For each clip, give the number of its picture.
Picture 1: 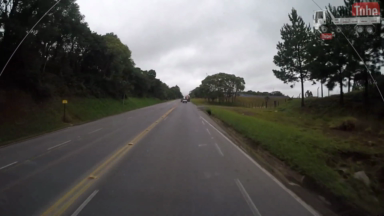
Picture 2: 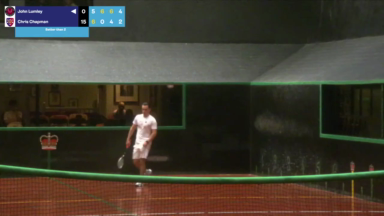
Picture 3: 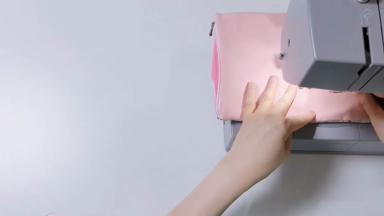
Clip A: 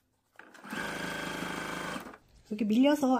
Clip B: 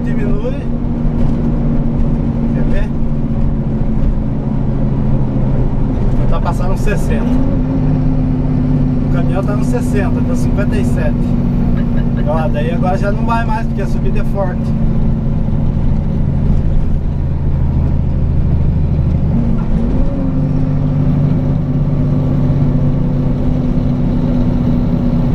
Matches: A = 3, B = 1